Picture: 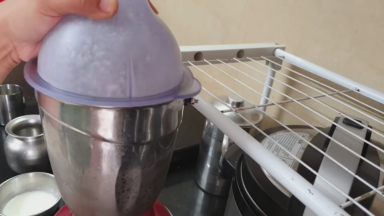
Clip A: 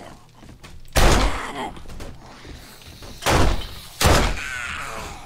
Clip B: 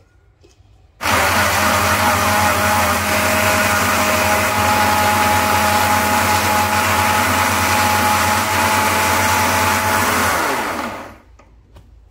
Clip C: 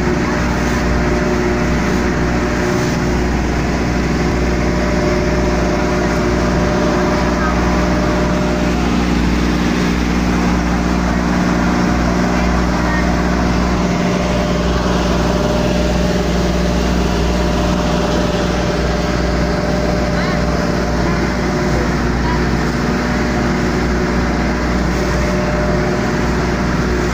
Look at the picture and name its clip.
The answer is B